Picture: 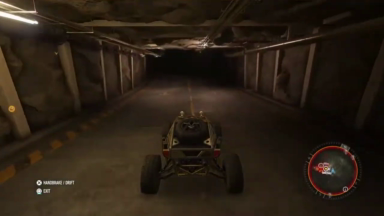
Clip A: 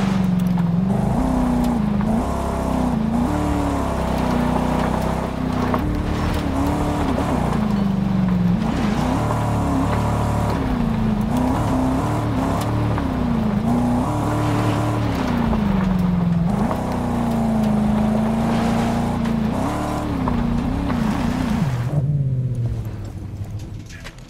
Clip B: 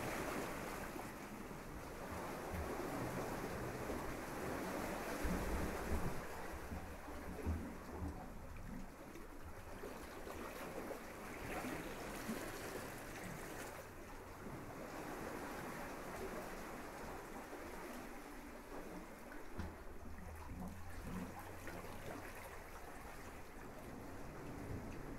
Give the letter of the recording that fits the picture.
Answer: A